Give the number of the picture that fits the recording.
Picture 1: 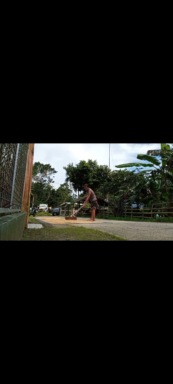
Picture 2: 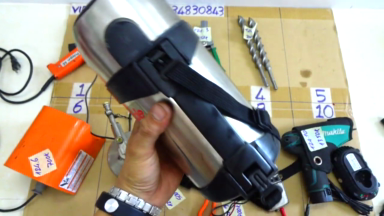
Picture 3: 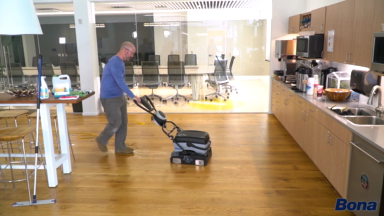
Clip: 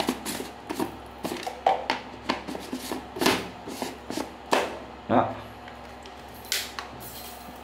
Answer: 2